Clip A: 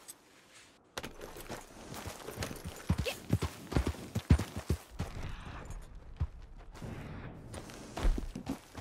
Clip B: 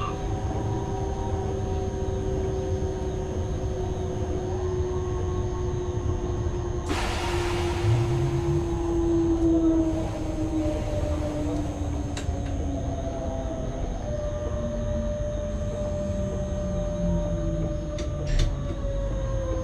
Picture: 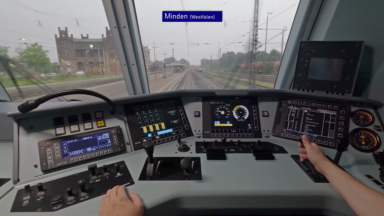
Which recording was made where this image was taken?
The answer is B